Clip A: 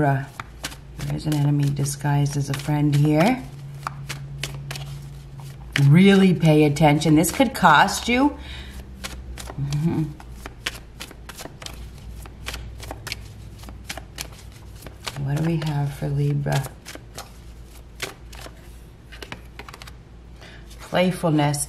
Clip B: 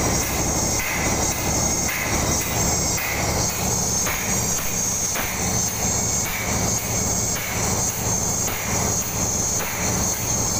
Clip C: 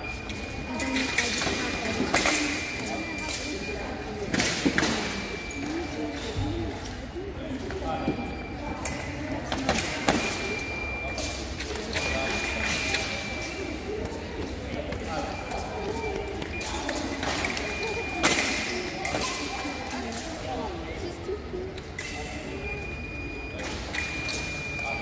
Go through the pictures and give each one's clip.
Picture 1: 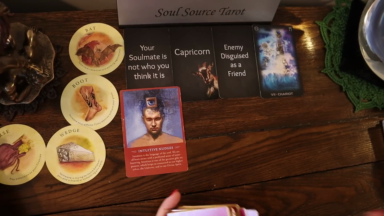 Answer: A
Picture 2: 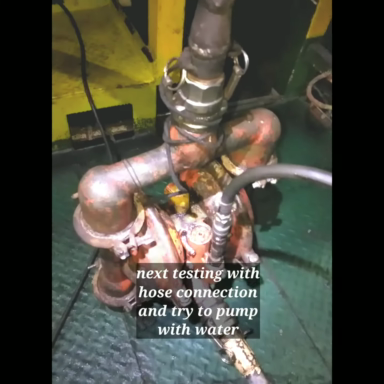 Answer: B